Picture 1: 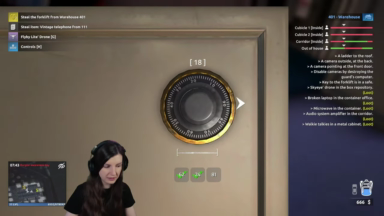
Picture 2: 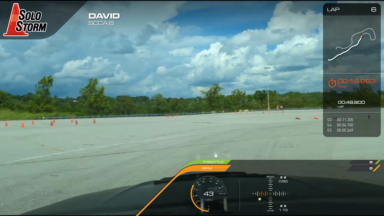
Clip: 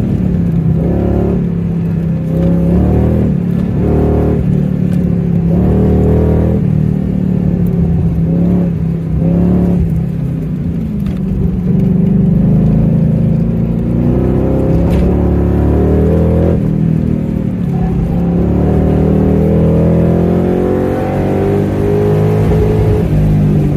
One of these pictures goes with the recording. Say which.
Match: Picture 2